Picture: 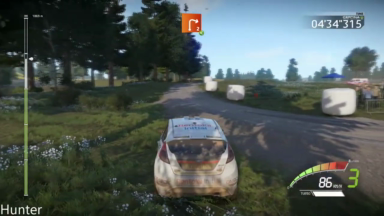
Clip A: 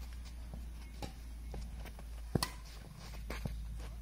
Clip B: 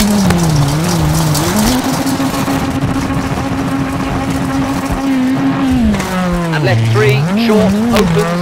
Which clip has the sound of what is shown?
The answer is B